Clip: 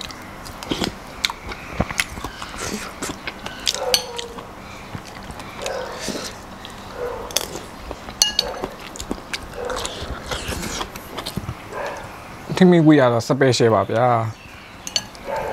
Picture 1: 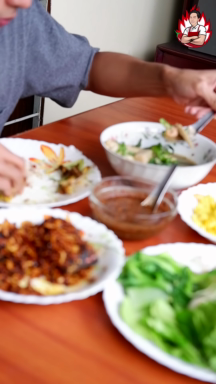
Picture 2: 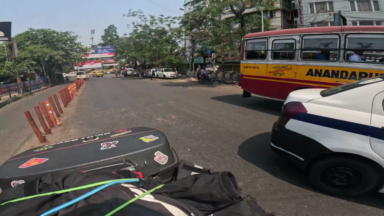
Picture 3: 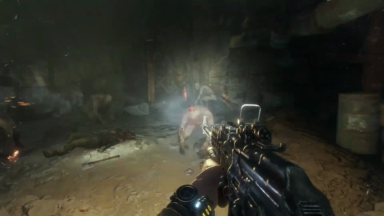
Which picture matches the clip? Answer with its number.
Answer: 1